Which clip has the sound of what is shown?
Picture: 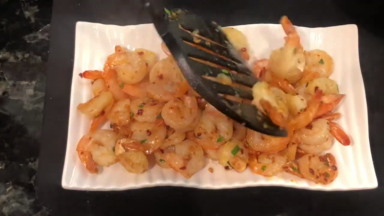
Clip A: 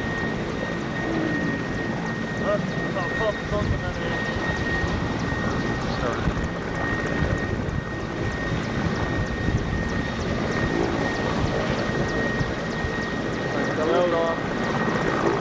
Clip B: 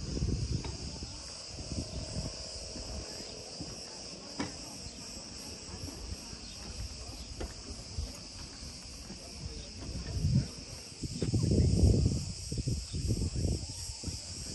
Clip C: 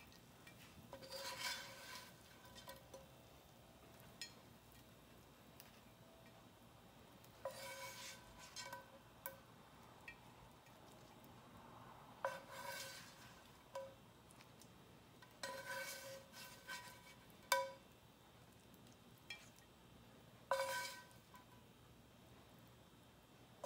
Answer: C